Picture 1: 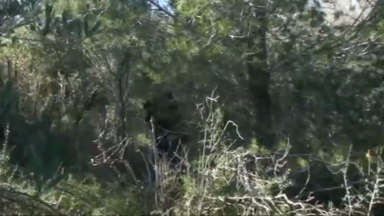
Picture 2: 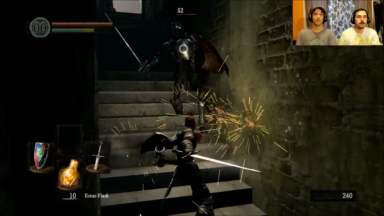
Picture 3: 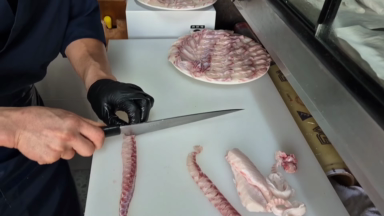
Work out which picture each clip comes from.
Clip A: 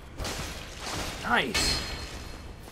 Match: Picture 2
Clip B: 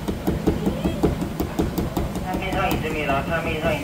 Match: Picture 3